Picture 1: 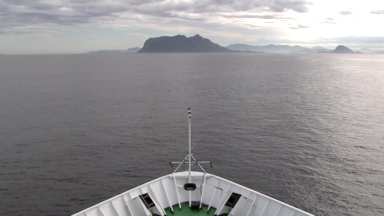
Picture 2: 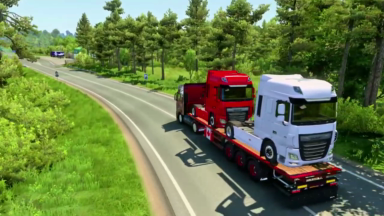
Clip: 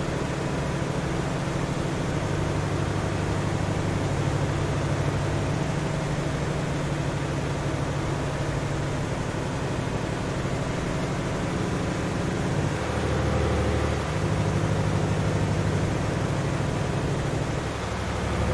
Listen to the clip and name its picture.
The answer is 2